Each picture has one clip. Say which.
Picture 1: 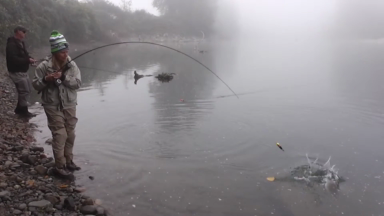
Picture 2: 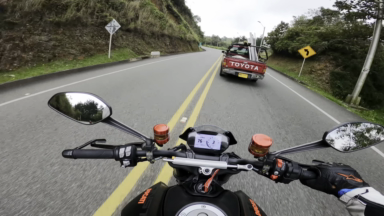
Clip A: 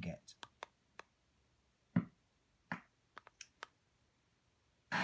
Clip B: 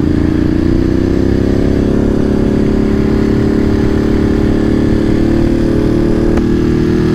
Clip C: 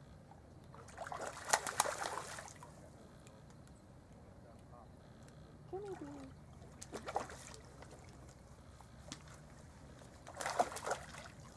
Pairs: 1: C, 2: B